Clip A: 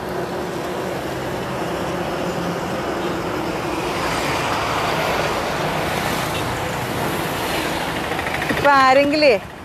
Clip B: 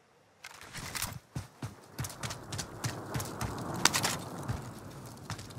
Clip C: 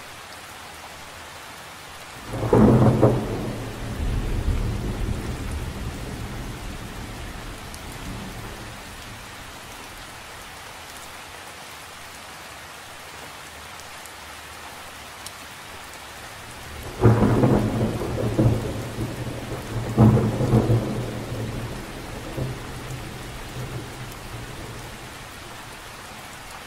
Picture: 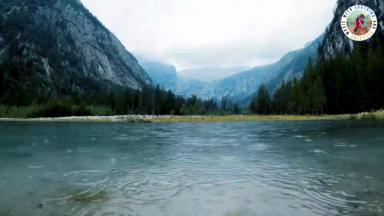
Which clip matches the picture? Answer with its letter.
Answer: C